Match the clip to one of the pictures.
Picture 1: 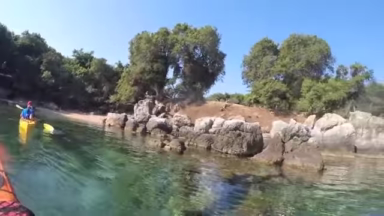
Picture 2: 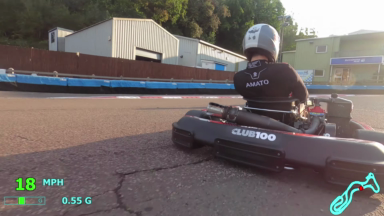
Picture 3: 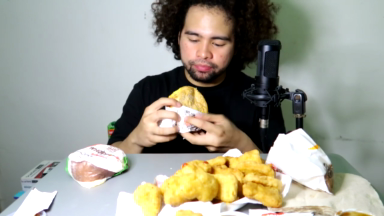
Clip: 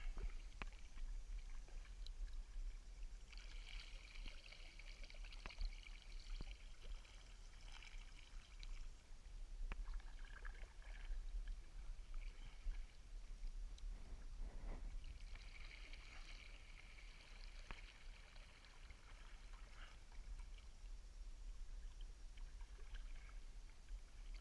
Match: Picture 1